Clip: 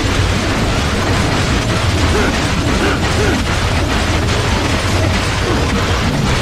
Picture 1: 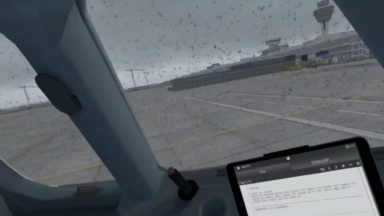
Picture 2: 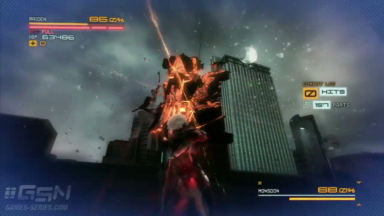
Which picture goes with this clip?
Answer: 2